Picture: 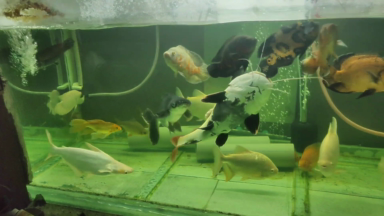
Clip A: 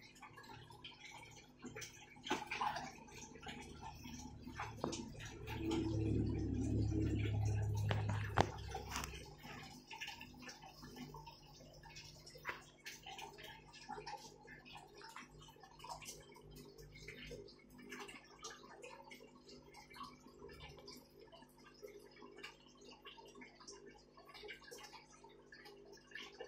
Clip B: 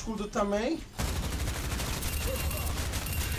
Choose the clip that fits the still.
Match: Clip A